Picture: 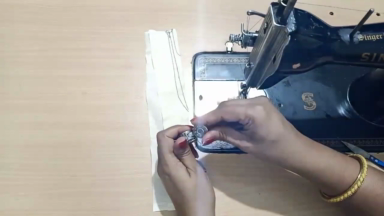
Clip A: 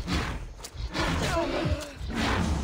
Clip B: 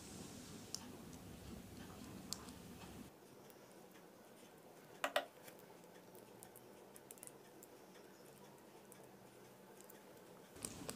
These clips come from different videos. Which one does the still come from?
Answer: B